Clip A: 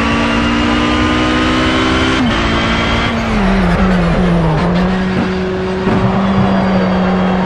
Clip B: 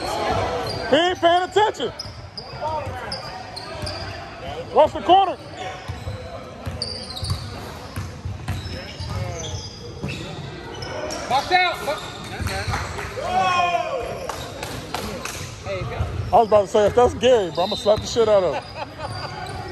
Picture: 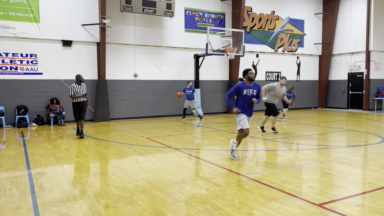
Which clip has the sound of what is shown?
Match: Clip B